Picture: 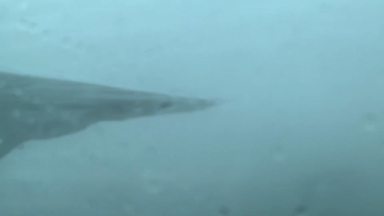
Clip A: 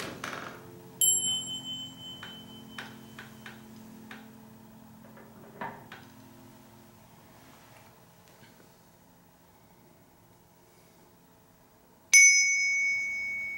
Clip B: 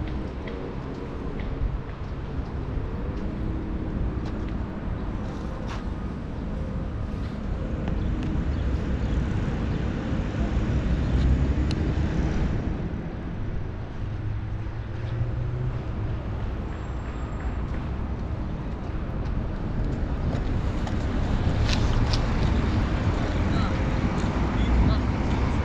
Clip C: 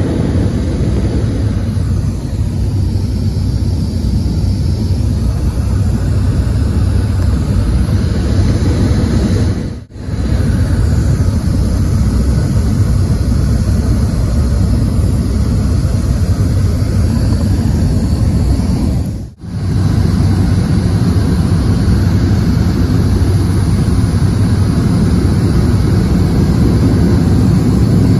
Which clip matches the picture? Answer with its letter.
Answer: C